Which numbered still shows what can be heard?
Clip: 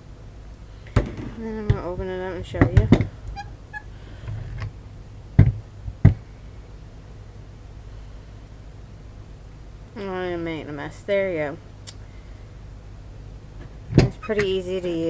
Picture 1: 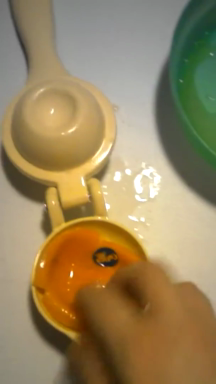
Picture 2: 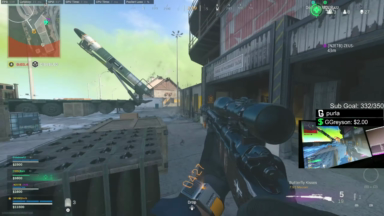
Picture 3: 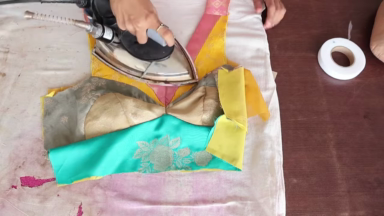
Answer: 1